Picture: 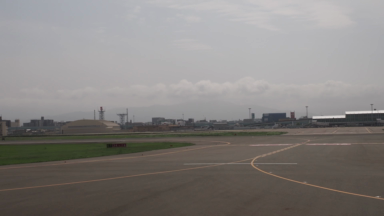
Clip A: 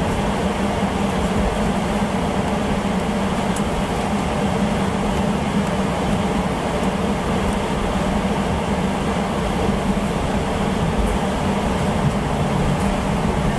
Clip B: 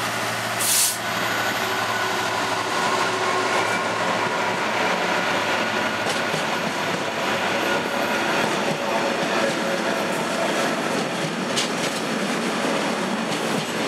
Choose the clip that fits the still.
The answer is A